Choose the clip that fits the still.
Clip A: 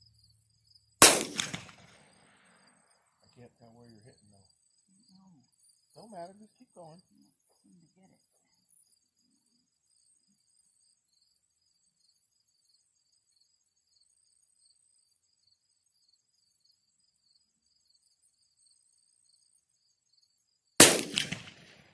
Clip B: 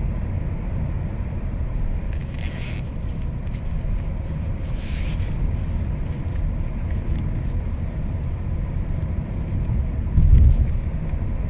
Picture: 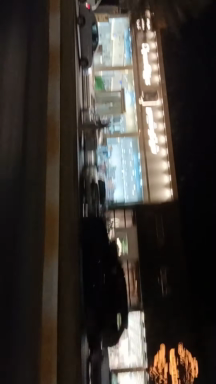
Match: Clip B